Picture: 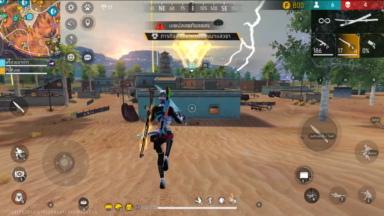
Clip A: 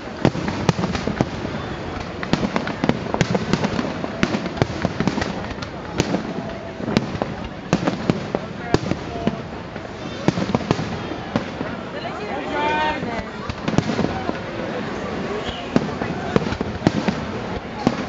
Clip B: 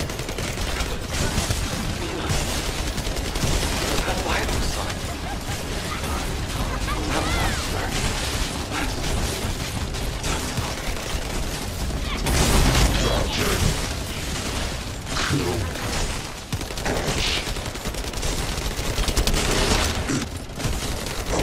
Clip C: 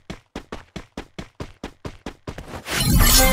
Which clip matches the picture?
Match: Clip C